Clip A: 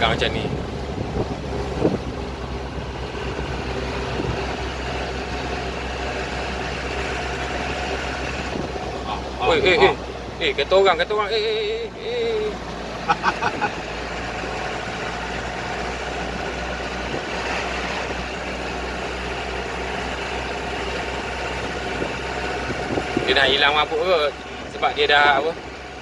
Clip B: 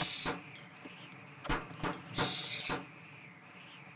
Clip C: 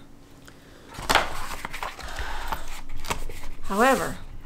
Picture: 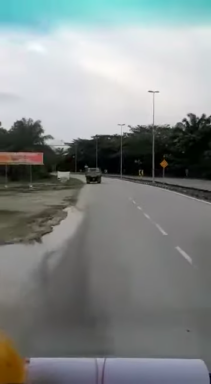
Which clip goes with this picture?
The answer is A